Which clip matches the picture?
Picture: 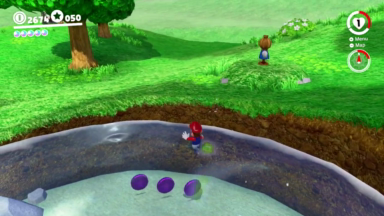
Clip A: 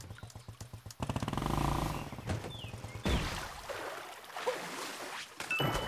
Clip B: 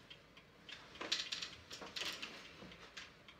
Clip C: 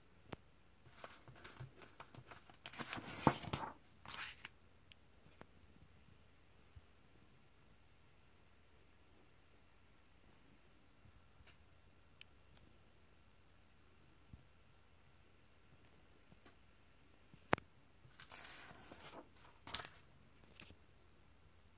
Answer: A